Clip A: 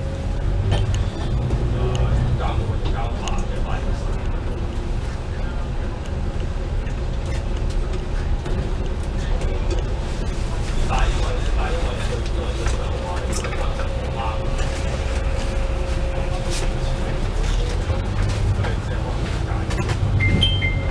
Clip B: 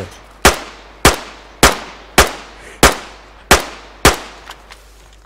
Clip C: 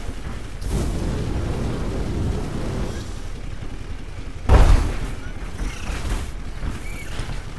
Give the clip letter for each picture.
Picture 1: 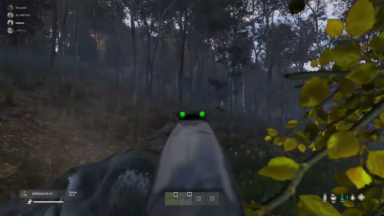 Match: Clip B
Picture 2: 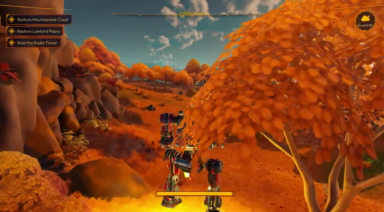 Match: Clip C